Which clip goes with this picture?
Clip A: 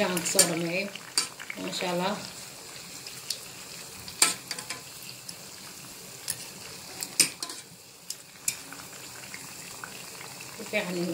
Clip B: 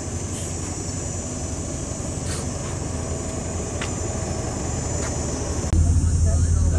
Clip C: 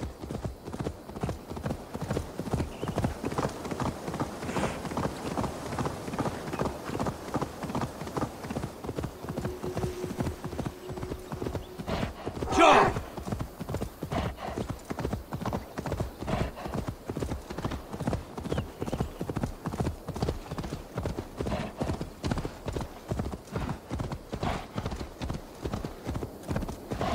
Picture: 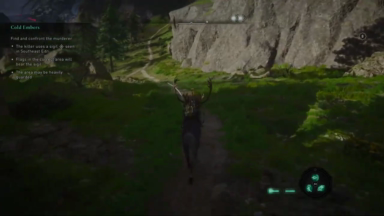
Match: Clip C